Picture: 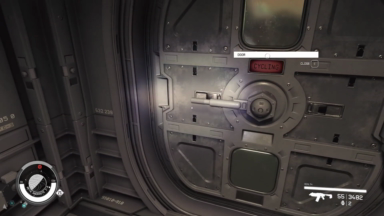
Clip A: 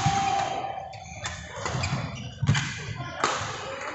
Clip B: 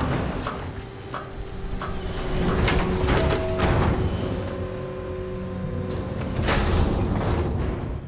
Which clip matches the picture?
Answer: B